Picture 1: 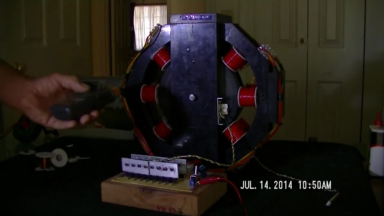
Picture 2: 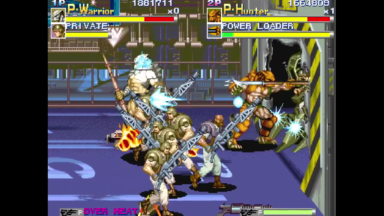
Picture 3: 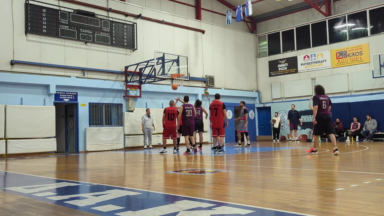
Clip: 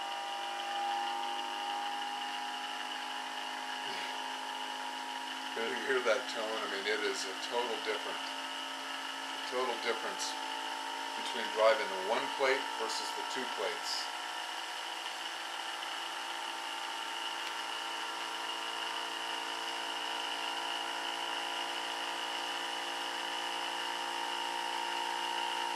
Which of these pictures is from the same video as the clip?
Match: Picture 1